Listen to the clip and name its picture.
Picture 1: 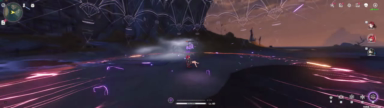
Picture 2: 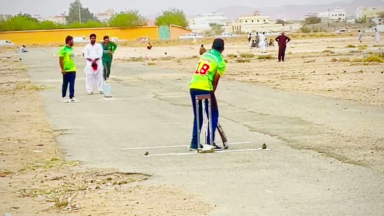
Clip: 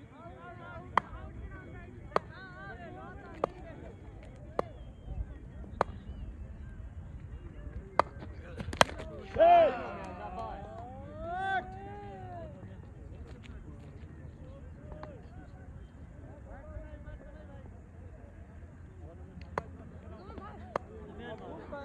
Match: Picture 2